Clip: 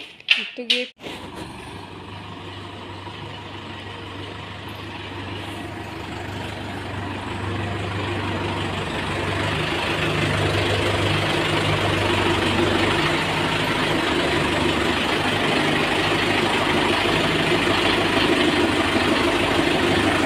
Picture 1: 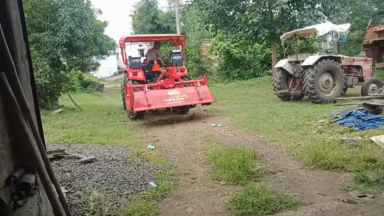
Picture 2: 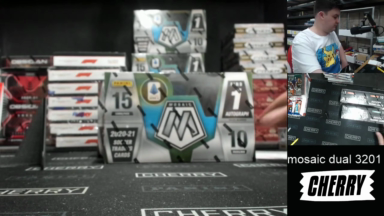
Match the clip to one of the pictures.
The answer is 1